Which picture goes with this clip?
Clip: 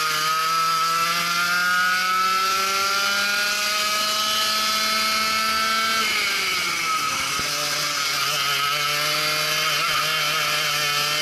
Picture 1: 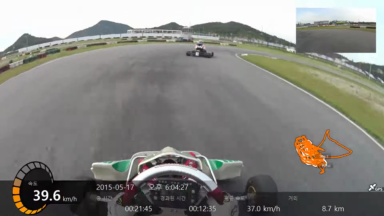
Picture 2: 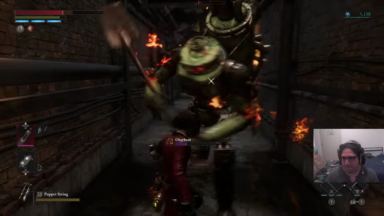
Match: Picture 1